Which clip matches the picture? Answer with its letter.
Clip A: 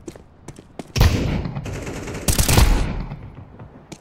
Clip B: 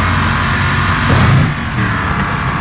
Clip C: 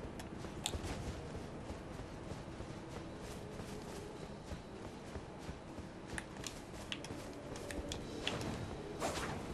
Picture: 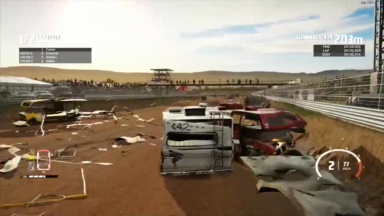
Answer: B